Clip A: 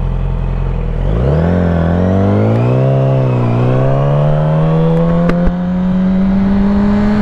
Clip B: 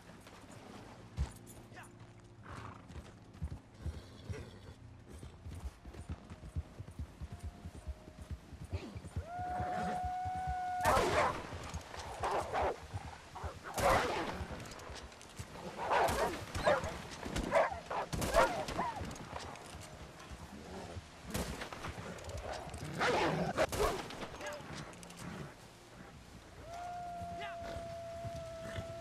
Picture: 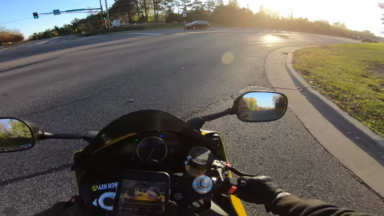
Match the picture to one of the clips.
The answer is A